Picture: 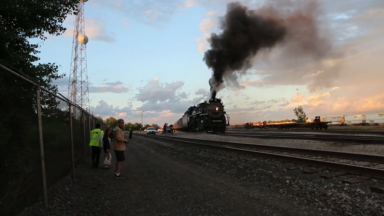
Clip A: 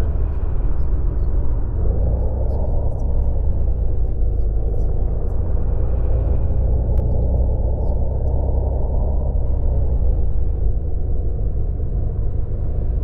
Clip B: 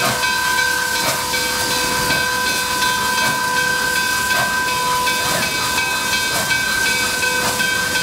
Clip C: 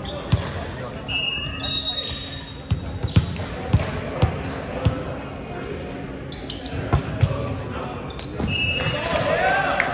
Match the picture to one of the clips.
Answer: B